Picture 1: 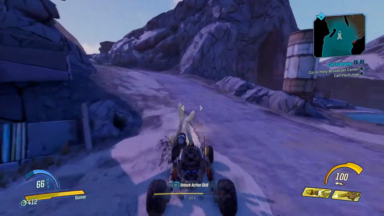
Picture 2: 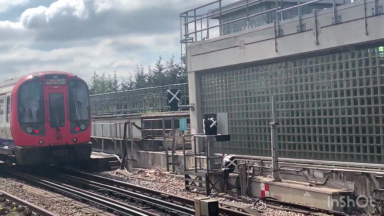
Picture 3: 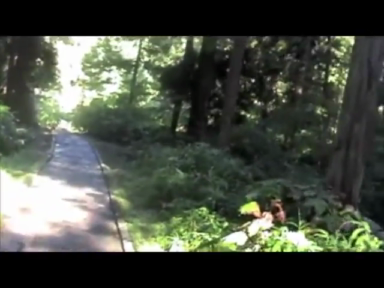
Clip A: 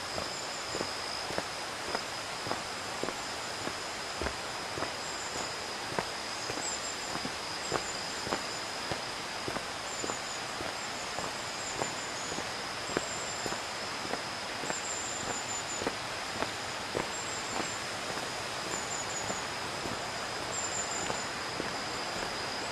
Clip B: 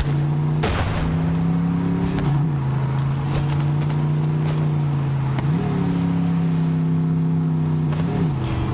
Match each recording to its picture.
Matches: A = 3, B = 1